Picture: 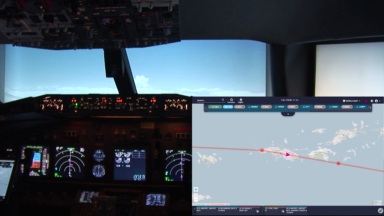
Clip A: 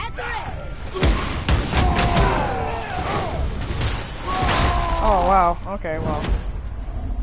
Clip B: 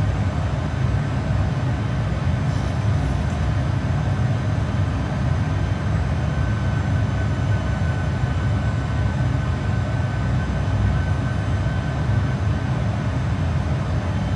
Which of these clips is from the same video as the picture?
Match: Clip B